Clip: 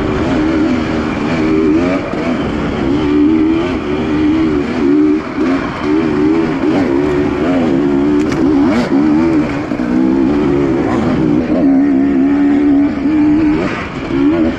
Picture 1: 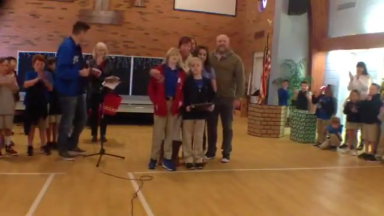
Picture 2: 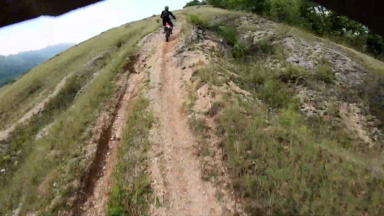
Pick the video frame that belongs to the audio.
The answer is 2